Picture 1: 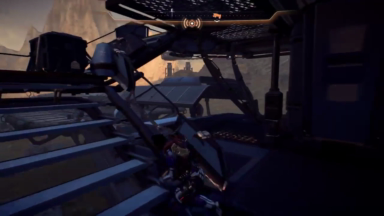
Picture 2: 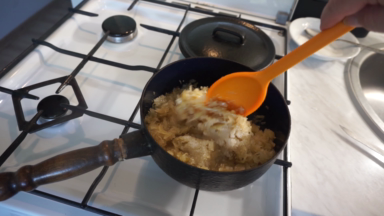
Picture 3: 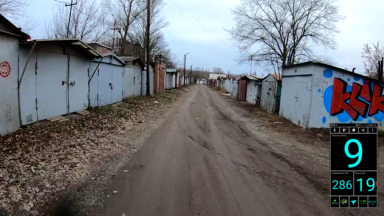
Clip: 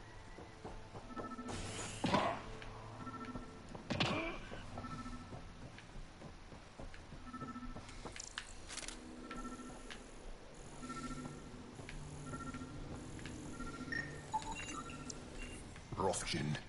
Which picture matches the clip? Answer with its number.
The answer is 1